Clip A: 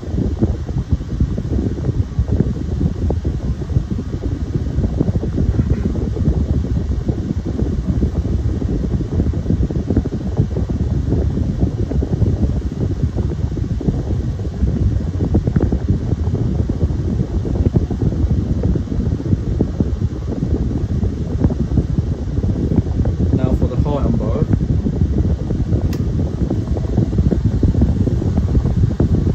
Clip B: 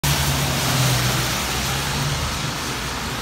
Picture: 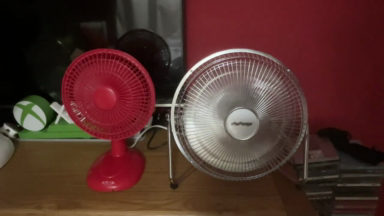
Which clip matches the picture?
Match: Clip A